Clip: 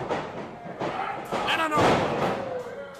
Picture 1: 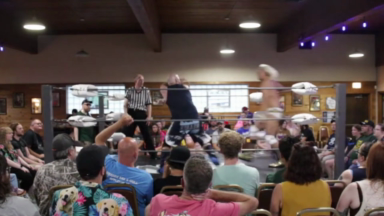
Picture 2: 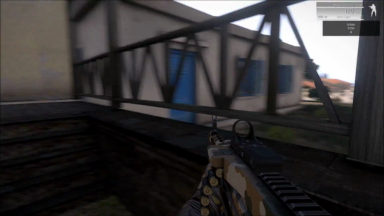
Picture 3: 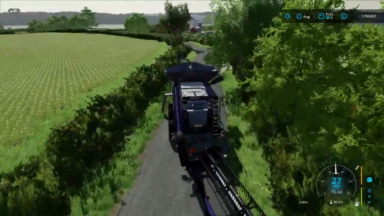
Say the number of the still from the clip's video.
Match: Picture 1